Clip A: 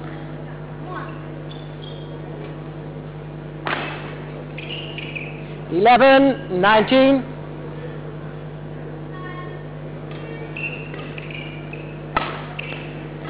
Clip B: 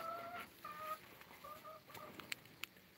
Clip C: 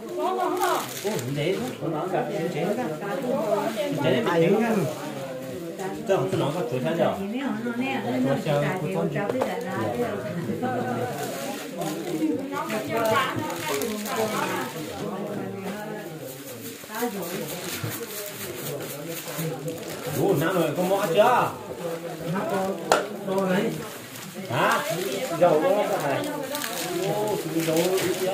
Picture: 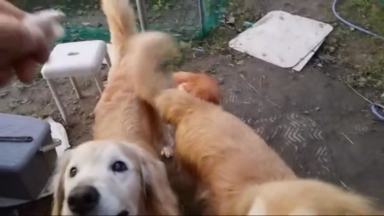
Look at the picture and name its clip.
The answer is B